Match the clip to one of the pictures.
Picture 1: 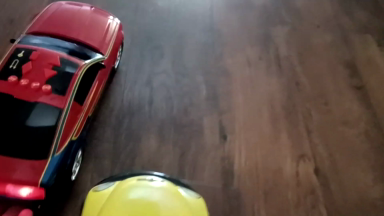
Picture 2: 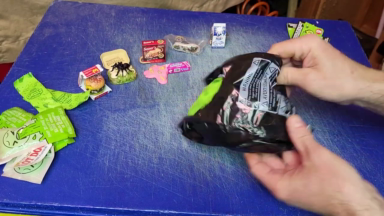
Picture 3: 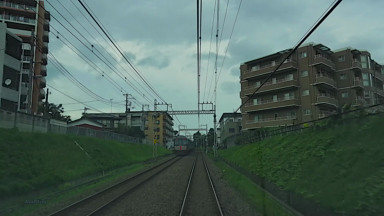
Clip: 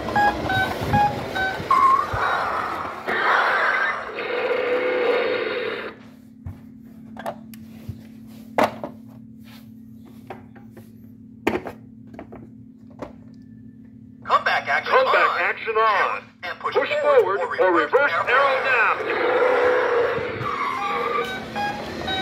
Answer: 1